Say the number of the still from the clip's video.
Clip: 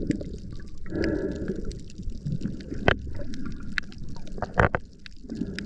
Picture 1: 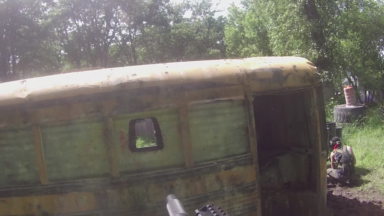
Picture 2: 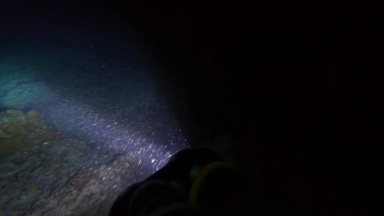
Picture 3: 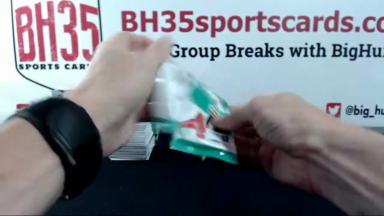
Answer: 2